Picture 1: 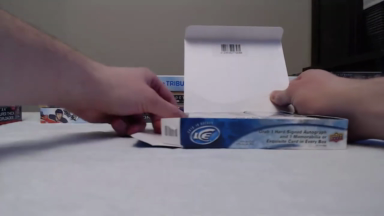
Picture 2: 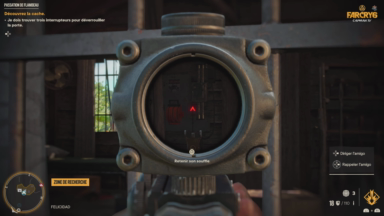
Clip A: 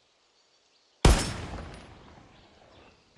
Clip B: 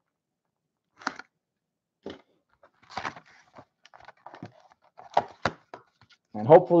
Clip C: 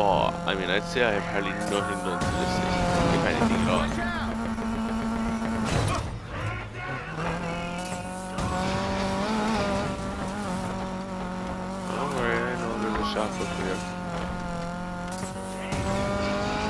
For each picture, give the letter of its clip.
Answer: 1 B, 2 A